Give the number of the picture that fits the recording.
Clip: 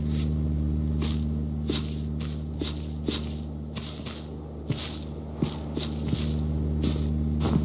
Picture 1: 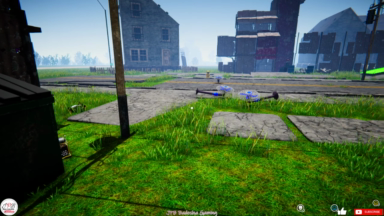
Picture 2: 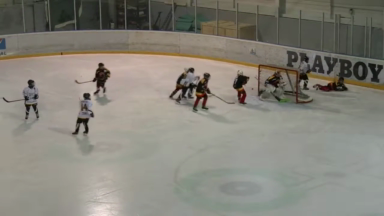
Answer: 1